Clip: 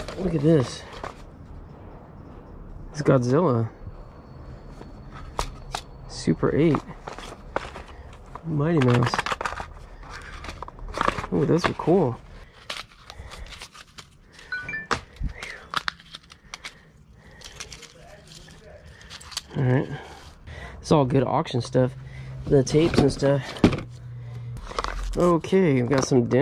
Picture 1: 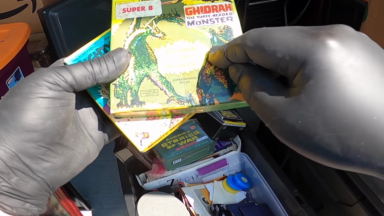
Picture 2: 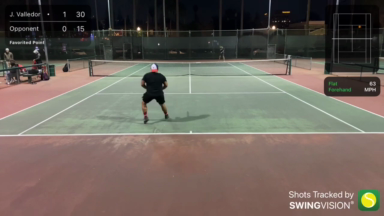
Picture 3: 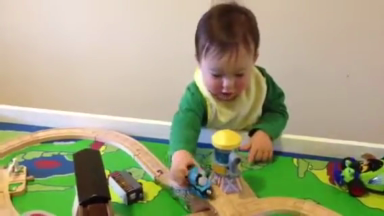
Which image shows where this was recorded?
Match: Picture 1